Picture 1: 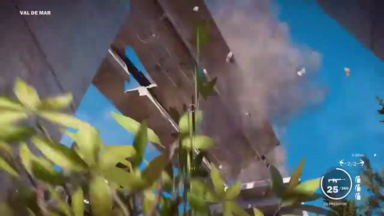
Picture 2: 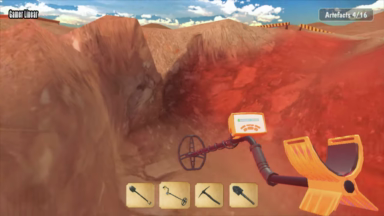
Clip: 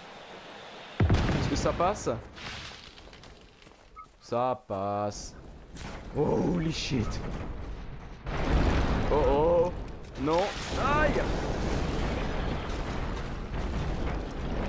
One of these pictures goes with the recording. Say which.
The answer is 1